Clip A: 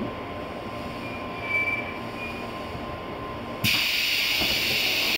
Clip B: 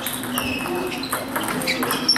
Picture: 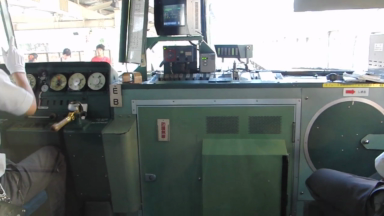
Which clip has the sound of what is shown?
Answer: A